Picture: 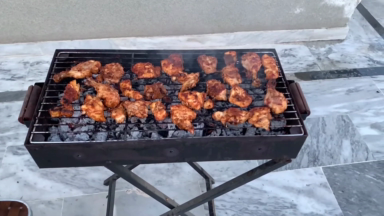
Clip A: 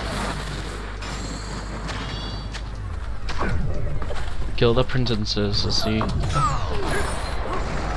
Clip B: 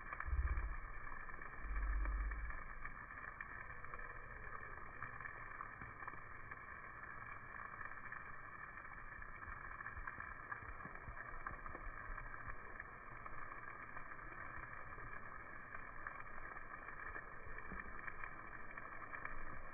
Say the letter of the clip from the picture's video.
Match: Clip B